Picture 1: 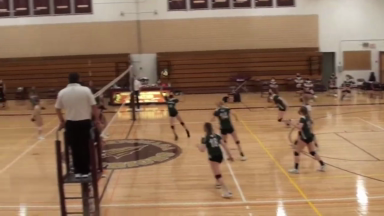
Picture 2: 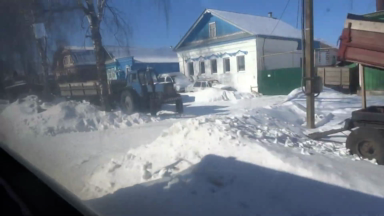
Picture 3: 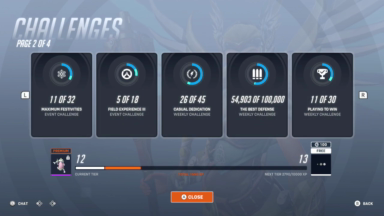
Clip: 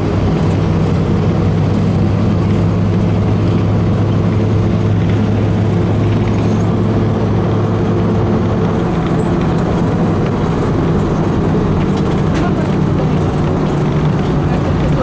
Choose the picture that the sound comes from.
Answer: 2